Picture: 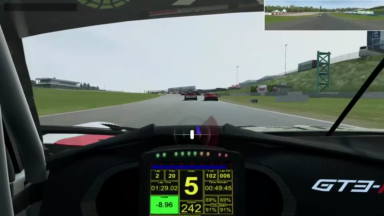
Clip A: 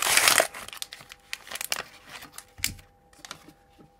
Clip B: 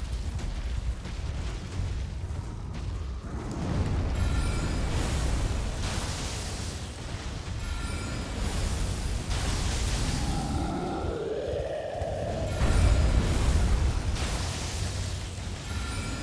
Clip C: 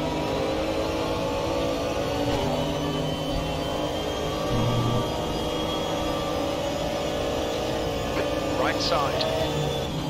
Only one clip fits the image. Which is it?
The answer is C